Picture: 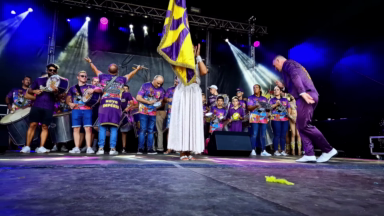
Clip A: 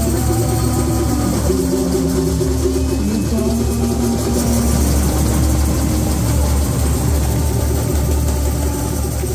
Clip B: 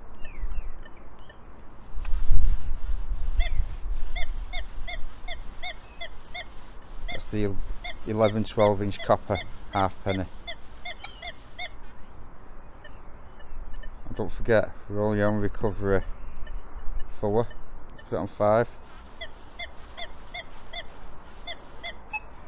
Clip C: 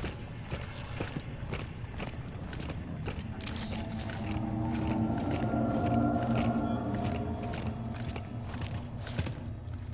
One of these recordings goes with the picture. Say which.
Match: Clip A